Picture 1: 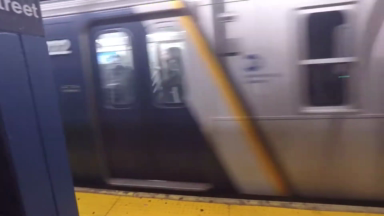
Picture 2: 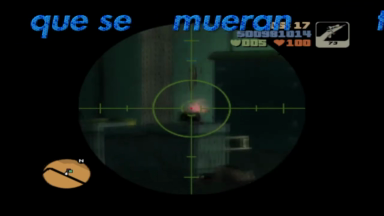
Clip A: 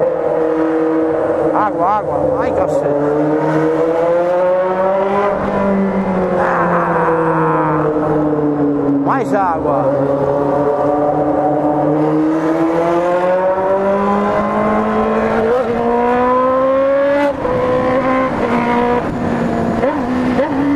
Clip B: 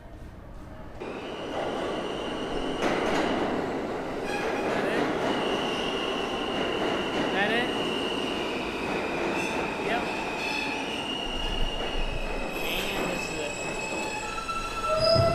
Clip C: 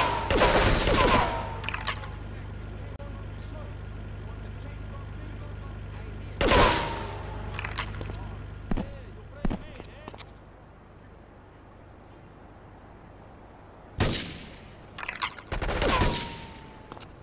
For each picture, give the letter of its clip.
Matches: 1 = B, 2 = C